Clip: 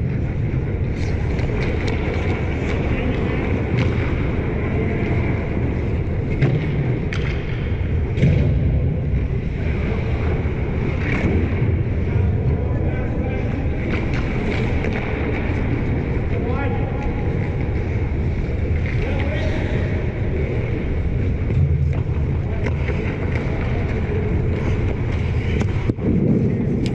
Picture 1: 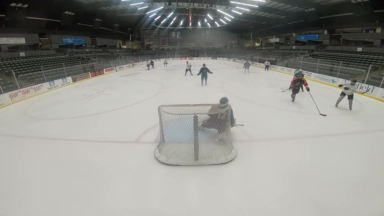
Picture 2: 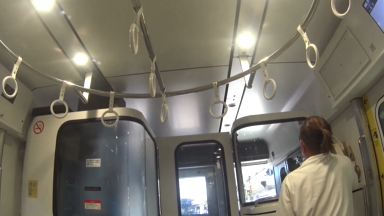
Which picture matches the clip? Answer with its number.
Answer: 1